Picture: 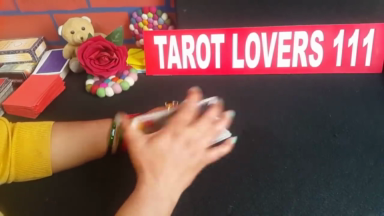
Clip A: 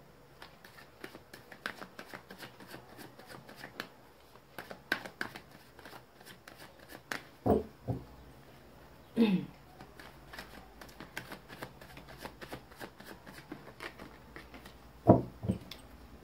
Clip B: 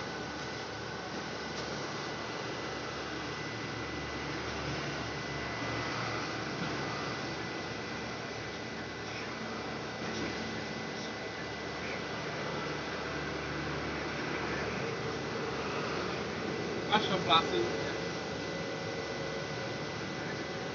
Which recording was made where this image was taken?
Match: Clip A